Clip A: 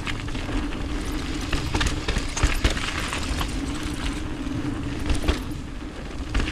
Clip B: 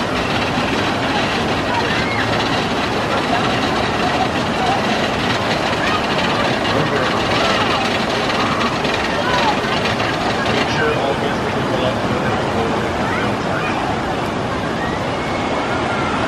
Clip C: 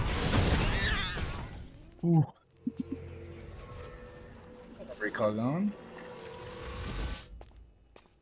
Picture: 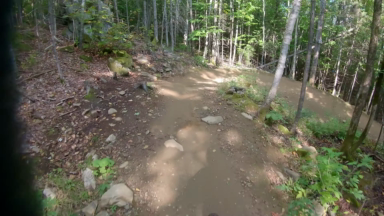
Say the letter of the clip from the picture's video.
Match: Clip A